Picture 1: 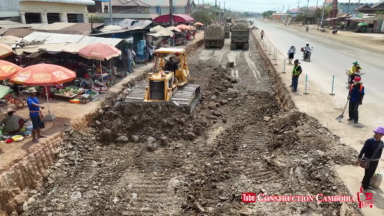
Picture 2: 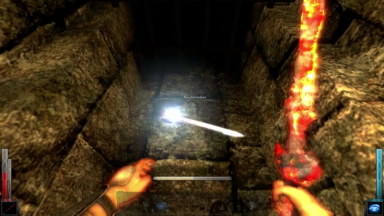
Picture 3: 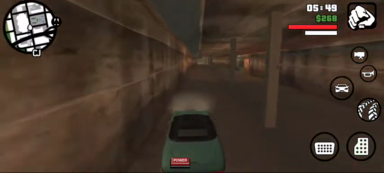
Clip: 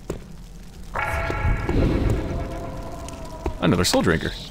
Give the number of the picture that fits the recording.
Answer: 2